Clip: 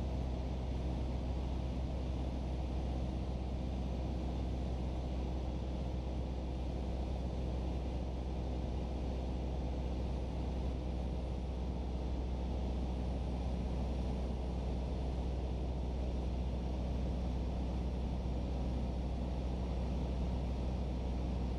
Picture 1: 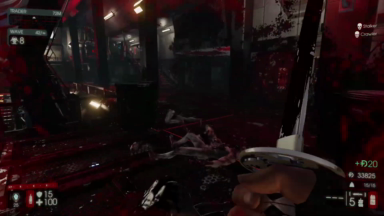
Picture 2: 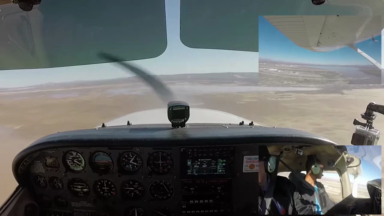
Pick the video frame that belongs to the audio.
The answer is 2